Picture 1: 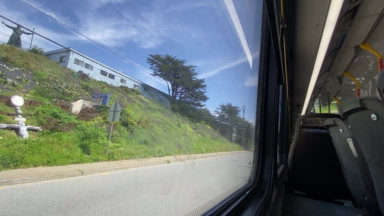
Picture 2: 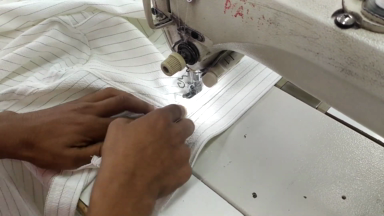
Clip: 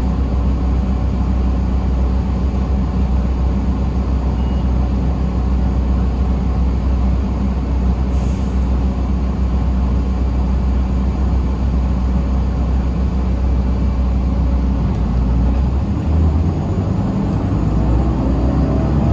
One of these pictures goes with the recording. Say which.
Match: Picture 1